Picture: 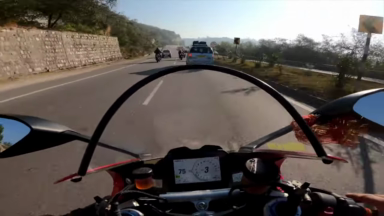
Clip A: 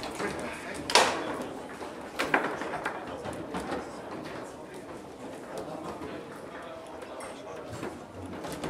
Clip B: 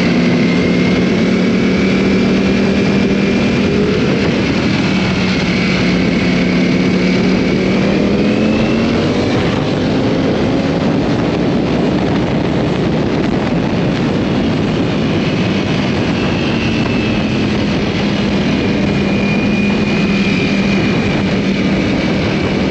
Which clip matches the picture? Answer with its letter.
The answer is B